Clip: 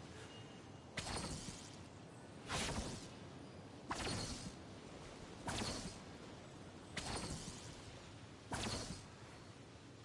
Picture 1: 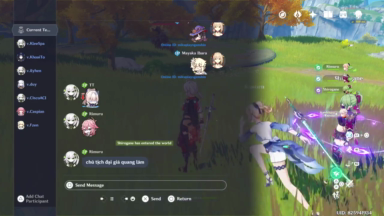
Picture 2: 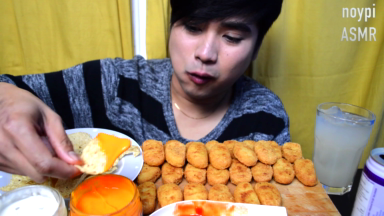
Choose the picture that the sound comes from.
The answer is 1